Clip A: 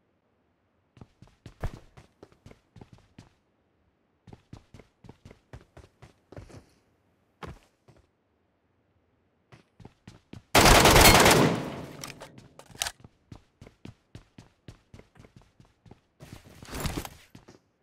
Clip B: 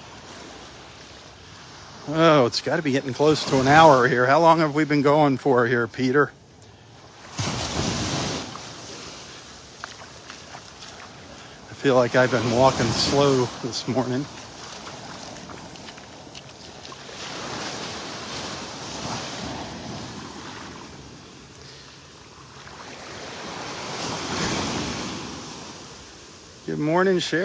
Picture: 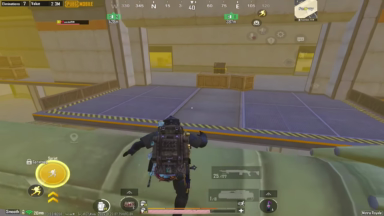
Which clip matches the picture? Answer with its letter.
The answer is A